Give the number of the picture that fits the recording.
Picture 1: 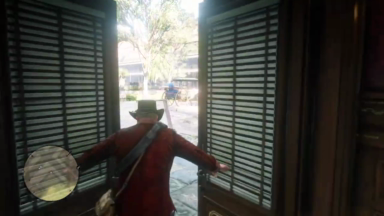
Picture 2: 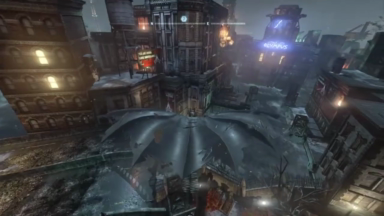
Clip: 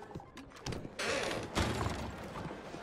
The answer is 1